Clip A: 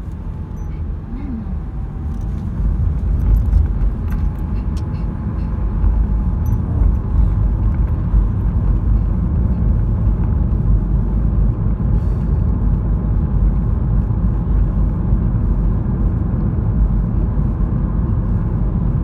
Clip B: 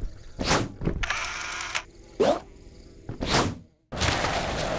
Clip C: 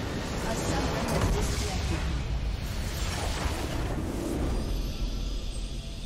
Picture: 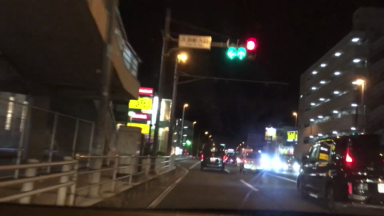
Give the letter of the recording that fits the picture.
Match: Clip A